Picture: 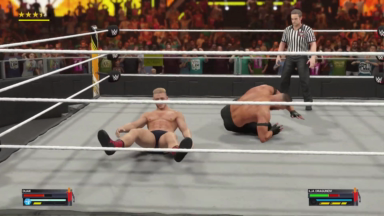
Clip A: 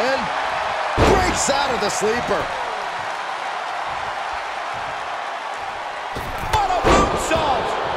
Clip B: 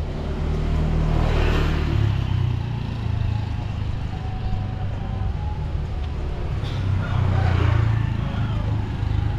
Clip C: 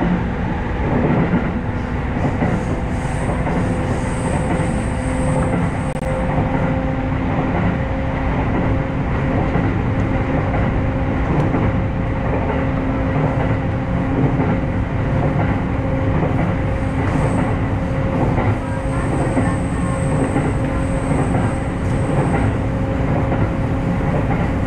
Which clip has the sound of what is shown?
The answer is A